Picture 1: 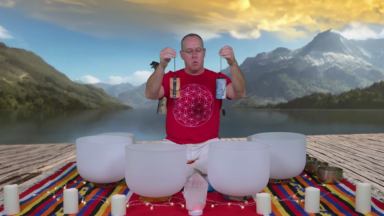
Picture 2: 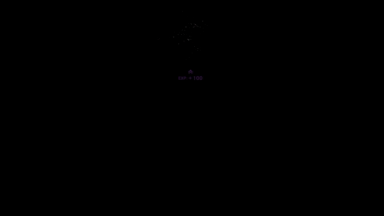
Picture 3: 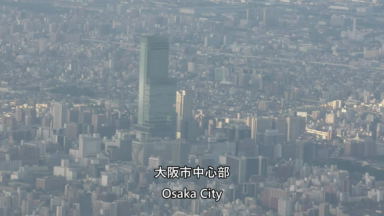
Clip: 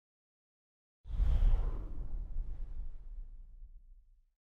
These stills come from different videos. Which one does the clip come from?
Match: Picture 2